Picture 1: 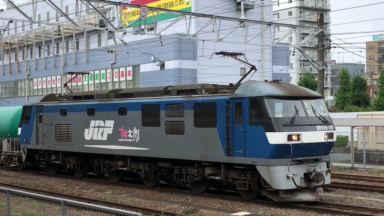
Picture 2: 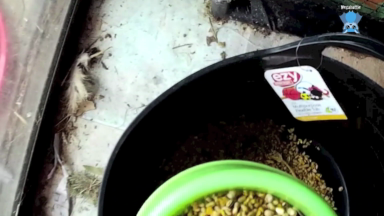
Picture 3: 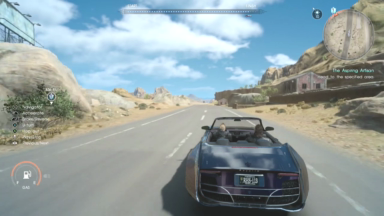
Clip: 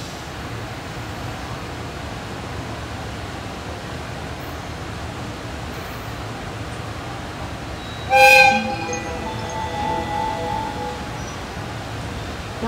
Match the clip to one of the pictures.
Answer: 1